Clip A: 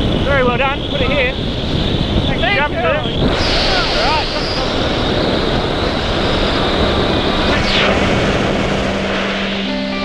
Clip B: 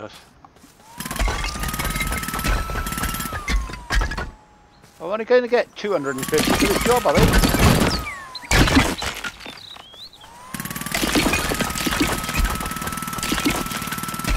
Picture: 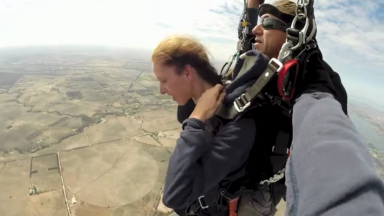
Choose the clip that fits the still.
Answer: A